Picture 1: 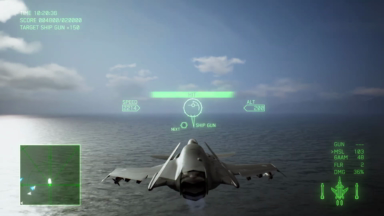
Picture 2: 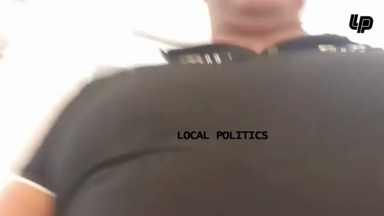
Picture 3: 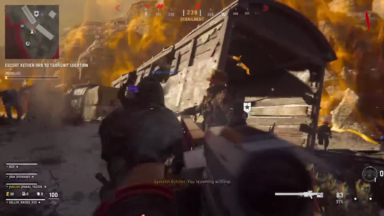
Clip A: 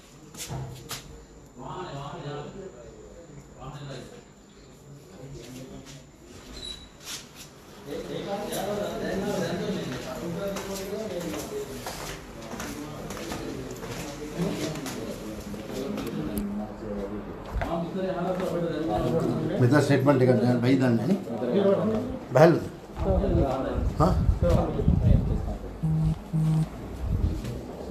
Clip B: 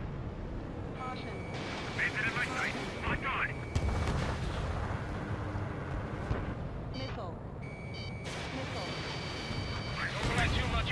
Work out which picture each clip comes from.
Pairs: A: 2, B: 1